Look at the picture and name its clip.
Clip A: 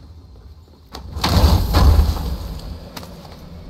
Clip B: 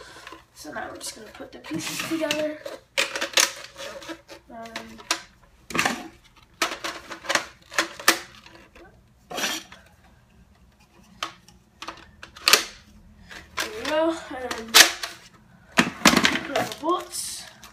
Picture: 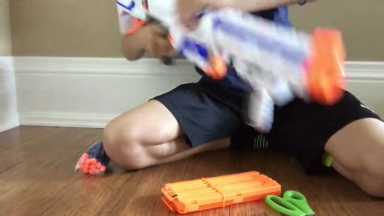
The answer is B